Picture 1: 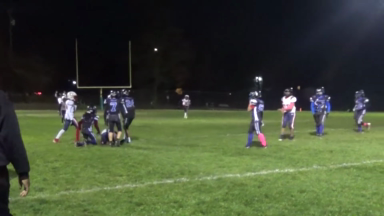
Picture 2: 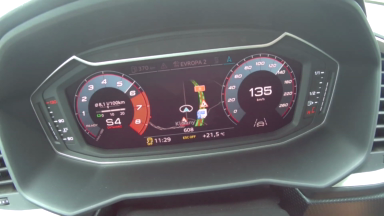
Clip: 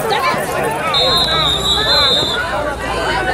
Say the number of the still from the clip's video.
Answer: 1